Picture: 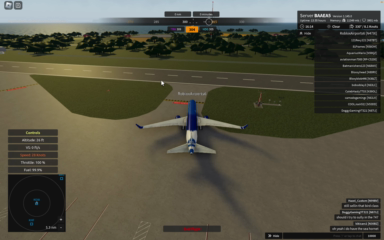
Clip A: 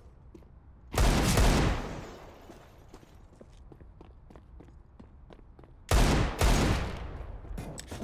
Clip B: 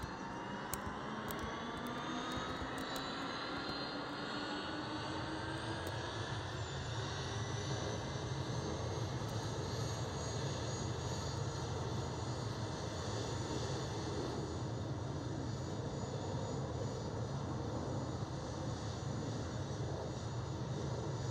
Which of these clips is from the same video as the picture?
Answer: B